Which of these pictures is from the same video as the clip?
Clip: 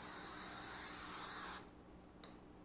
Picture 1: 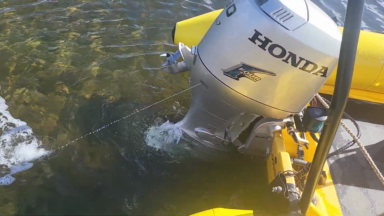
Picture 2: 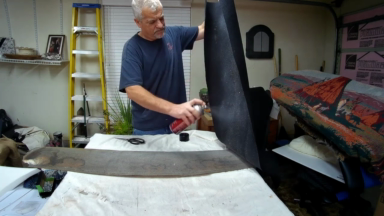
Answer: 2